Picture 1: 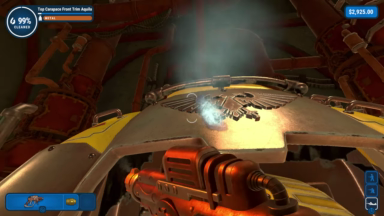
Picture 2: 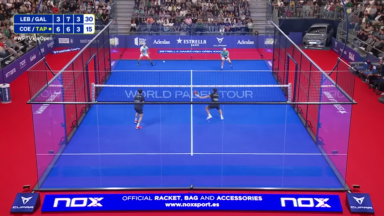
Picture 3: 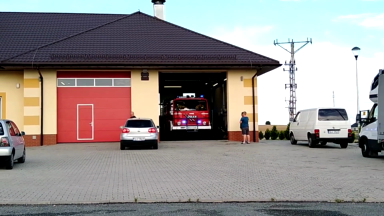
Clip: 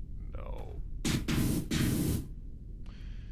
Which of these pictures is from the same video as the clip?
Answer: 1